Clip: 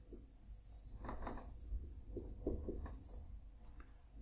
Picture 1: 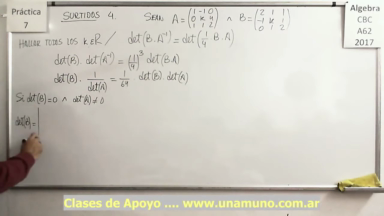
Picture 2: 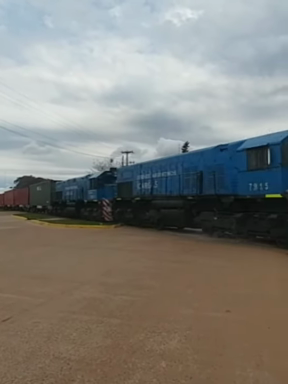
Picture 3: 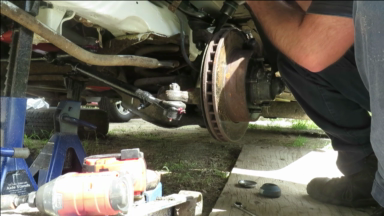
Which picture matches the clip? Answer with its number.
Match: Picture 1